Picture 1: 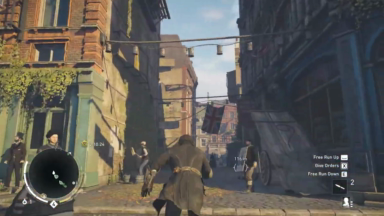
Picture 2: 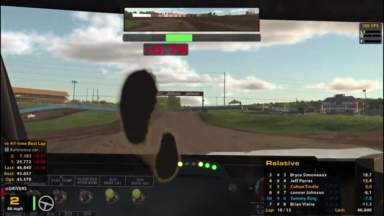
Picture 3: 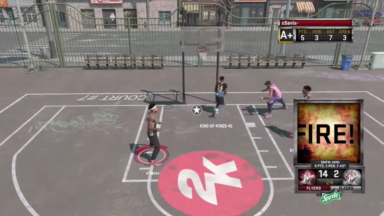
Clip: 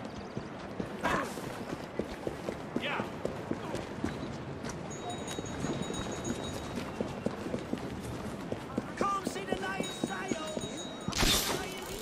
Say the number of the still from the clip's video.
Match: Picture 1